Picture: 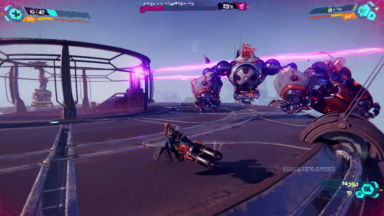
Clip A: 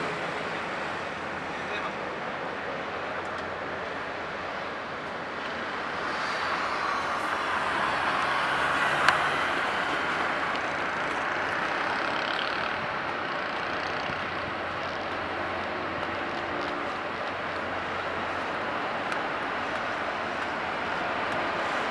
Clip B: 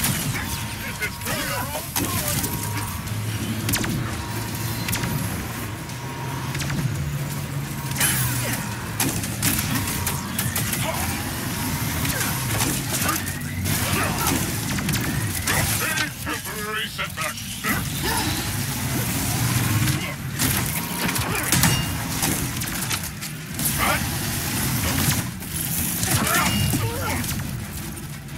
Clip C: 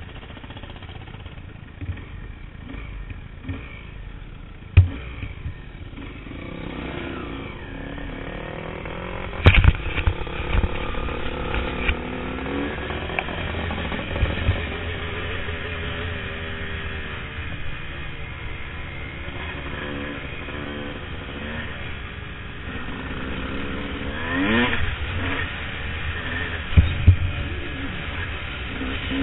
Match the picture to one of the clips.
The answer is B